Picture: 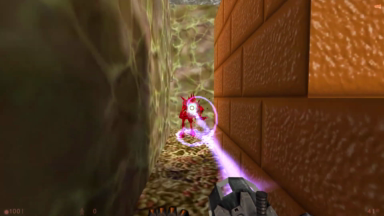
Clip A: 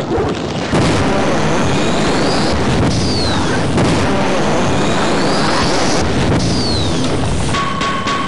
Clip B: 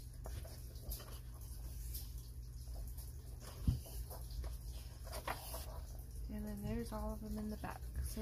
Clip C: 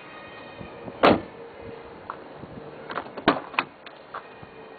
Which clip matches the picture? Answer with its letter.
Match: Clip A